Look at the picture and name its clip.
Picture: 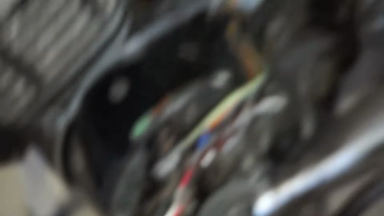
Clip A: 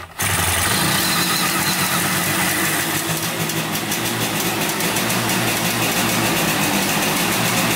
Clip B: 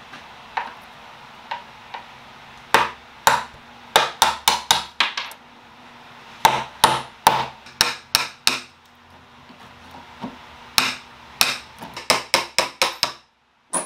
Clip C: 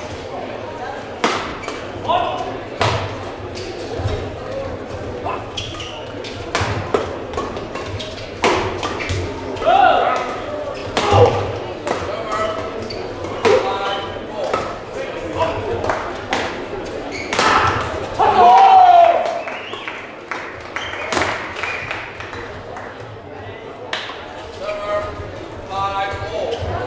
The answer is A